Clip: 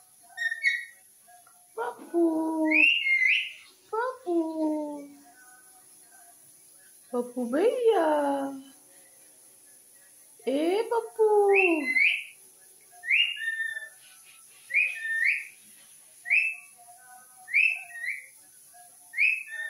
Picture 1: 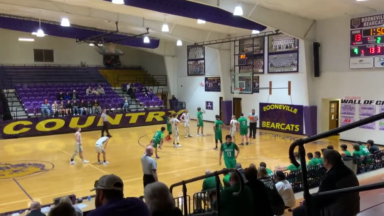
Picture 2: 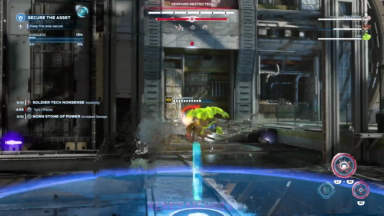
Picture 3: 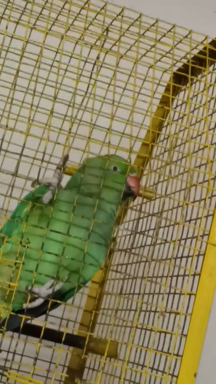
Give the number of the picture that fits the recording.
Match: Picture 3